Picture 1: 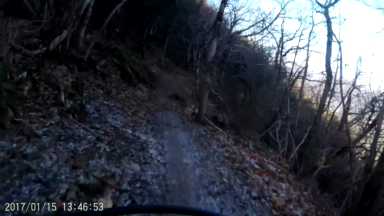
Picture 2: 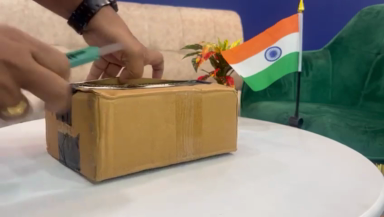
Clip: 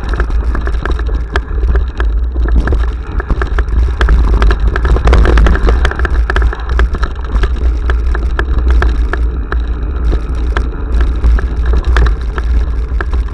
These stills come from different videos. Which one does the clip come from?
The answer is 1